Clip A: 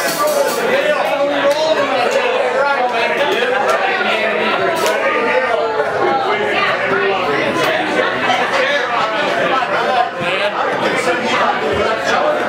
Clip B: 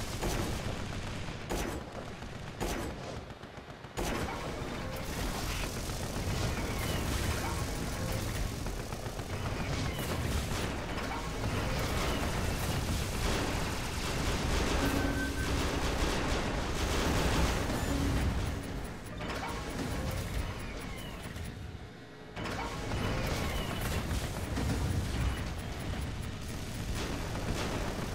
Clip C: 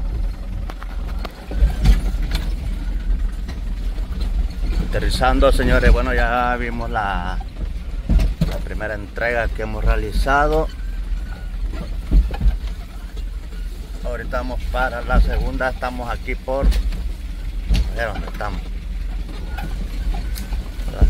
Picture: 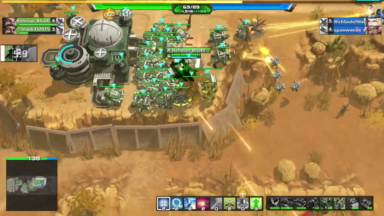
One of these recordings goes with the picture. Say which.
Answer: B